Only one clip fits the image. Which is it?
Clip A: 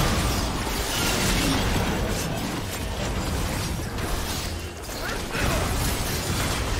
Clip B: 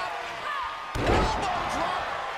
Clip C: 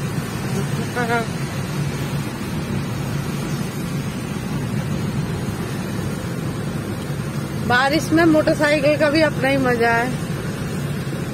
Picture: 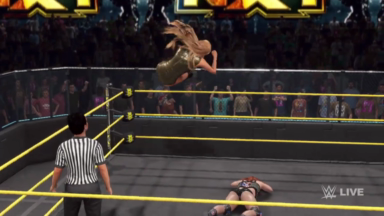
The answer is B